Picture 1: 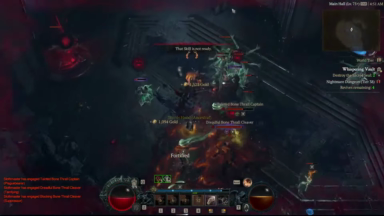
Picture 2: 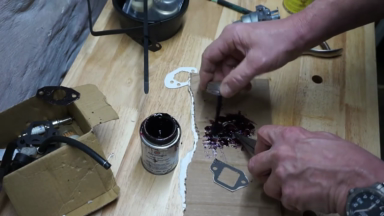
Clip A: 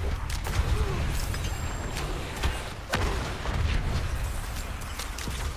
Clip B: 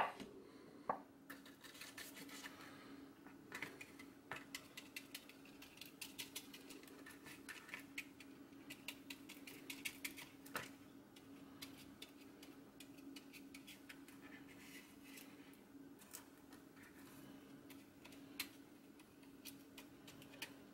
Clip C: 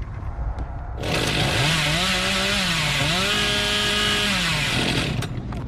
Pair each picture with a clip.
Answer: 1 A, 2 B